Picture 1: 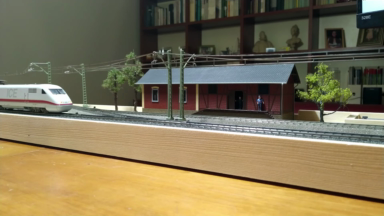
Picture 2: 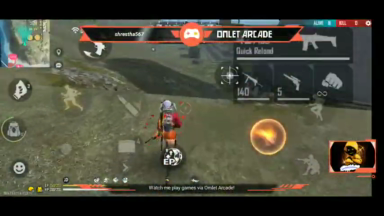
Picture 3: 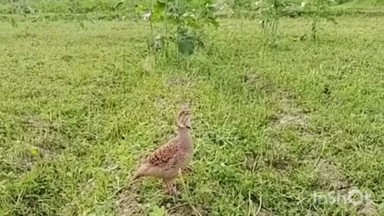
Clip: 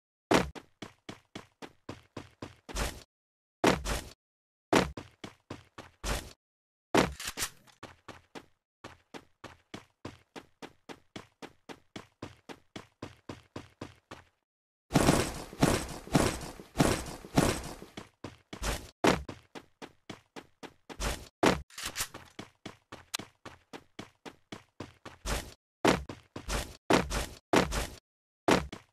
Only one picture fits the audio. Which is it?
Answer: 2